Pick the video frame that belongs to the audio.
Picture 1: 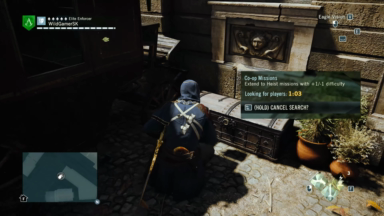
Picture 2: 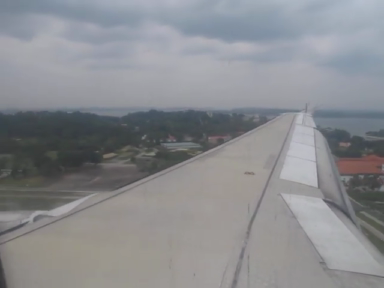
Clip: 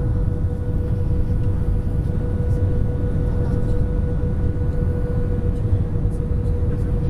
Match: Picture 2